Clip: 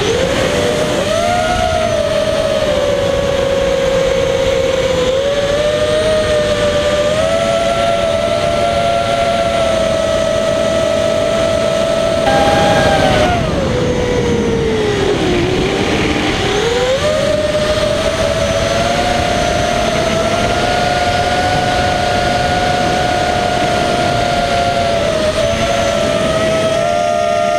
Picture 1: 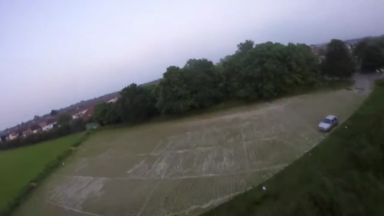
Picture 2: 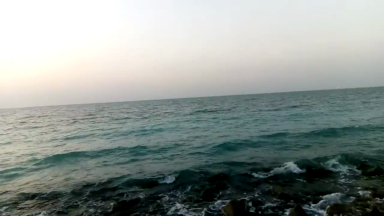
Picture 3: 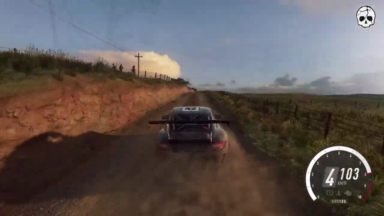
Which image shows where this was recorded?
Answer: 1